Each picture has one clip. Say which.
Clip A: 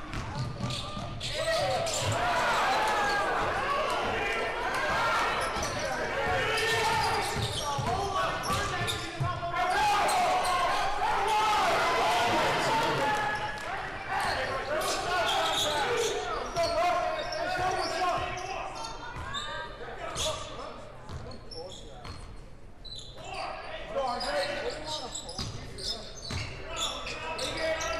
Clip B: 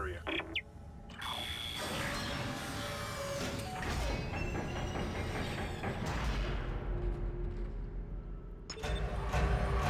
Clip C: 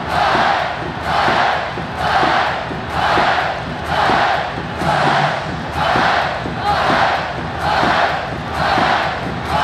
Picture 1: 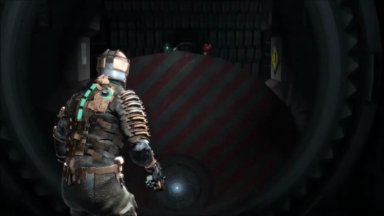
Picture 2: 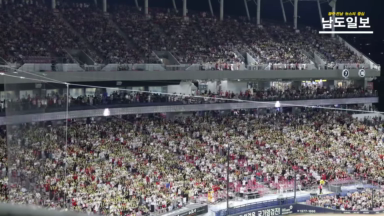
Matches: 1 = B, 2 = C